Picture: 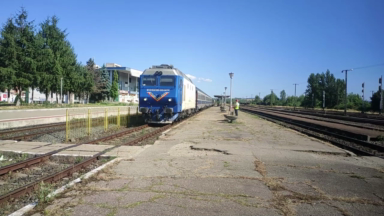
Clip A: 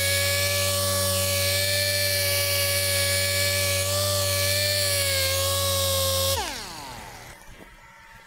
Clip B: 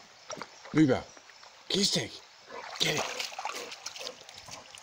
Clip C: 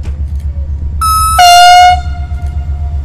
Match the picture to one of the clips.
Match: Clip C